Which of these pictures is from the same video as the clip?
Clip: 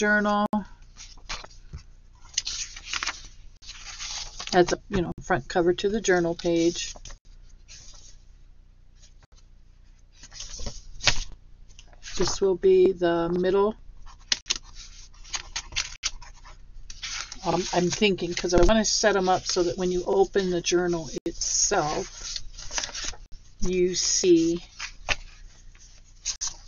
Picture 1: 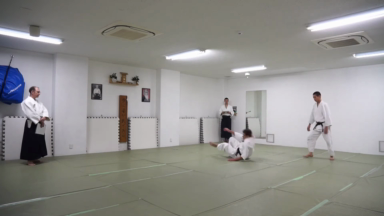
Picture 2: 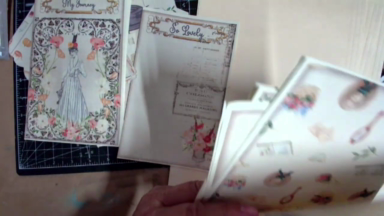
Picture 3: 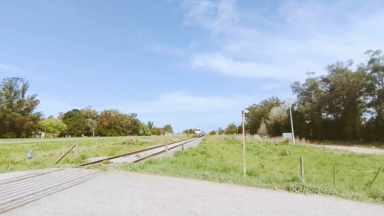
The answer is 2